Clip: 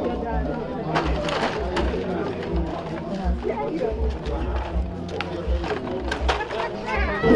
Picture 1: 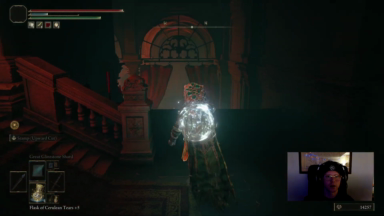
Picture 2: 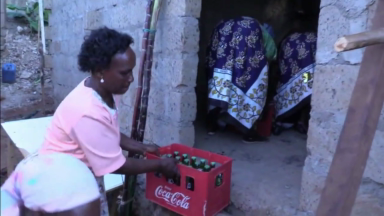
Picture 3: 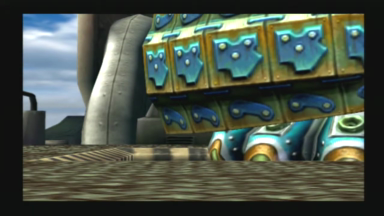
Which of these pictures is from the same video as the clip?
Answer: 2